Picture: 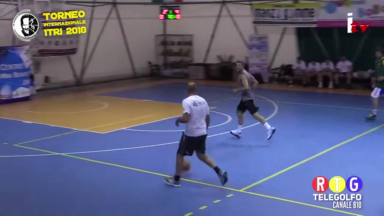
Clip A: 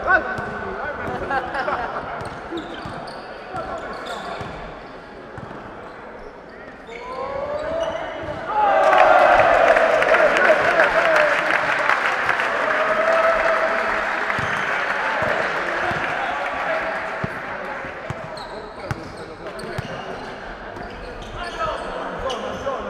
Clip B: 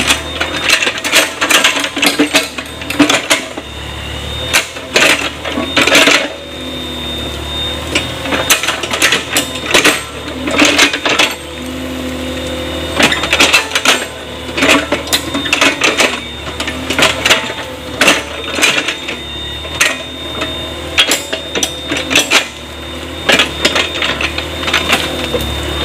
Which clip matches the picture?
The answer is A